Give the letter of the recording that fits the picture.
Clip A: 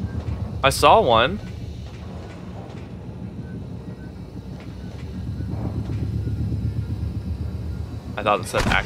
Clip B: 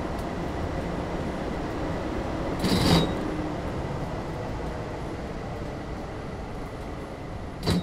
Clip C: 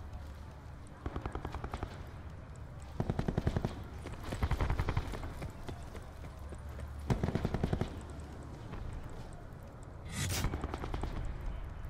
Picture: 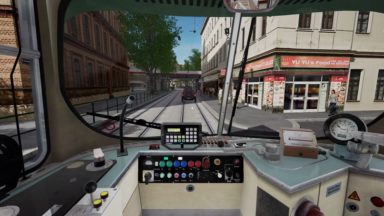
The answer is B